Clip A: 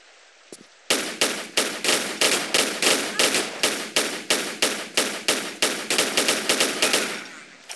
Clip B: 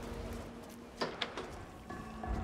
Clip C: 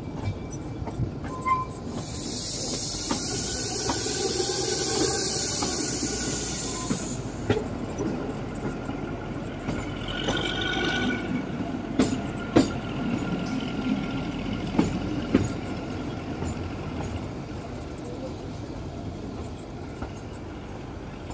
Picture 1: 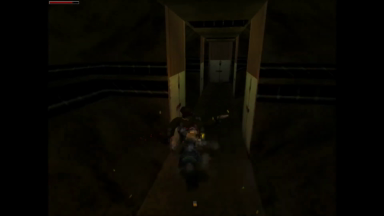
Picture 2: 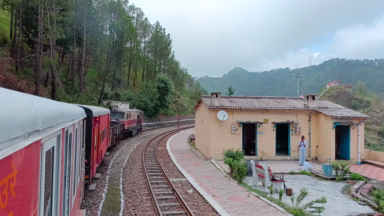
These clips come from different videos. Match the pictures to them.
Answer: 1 A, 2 C